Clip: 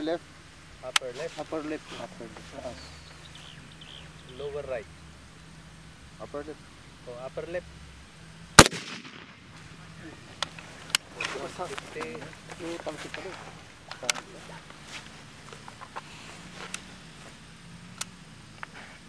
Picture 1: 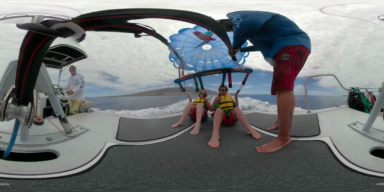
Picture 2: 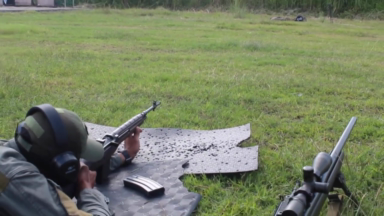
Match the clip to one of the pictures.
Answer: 2